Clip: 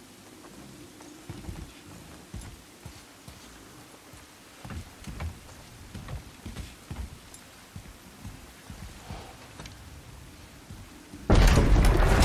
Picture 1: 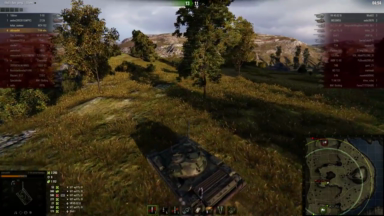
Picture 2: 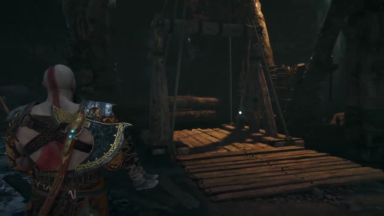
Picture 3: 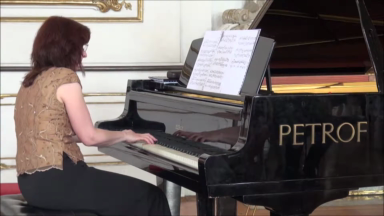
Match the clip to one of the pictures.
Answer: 2